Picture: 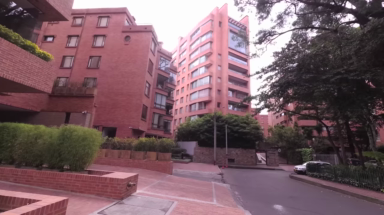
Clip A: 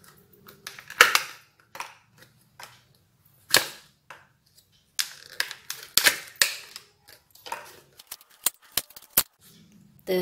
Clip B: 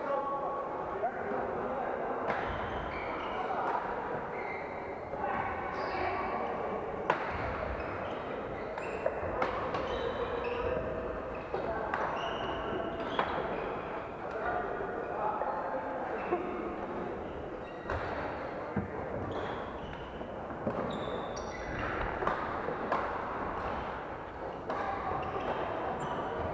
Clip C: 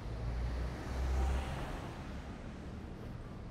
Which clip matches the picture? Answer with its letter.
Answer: C